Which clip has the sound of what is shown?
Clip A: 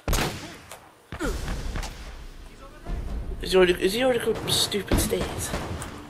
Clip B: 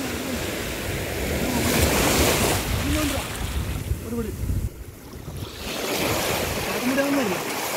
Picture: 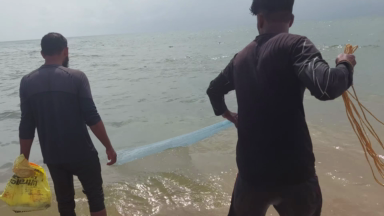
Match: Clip B